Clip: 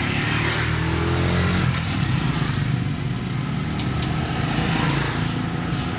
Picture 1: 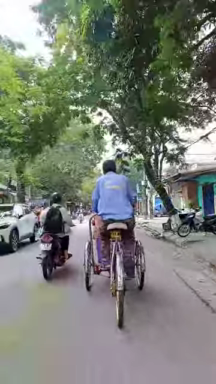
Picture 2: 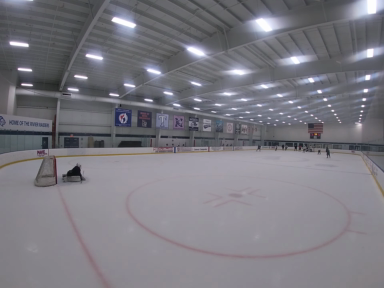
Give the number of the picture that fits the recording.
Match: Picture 1